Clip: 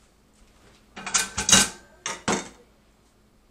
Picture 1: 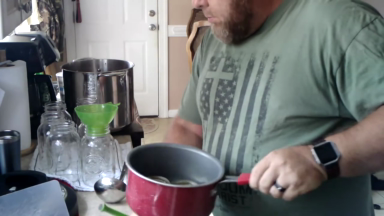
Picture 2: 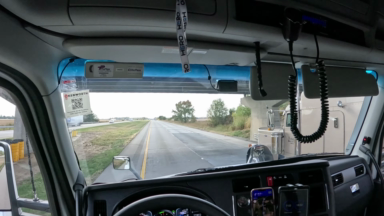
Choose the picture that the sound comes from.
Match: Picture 1